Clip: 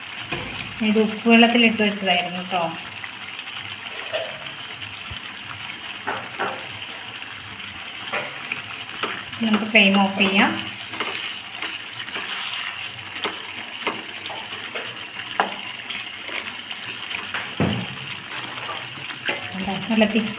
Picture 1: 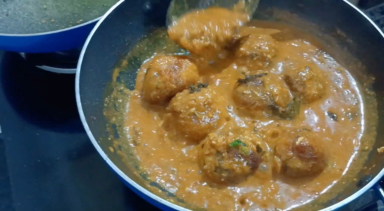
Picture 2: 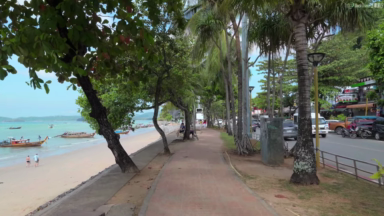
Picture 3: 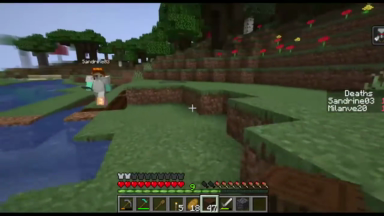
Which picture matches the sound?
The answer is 1